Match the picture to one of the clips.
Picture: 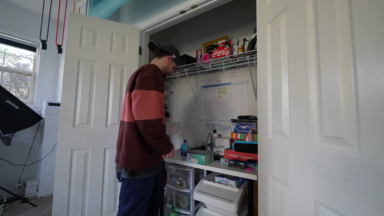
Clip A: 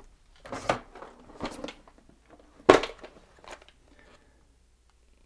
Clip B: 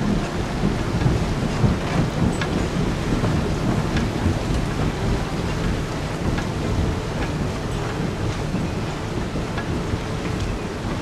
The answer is A